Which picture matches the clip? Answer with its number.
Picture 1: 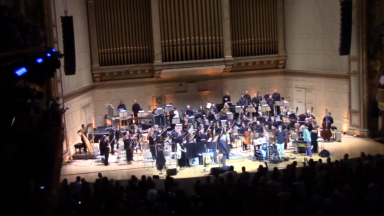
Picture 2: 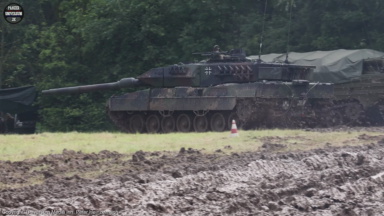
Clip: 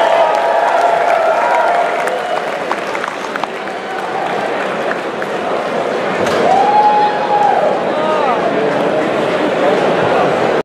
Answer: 1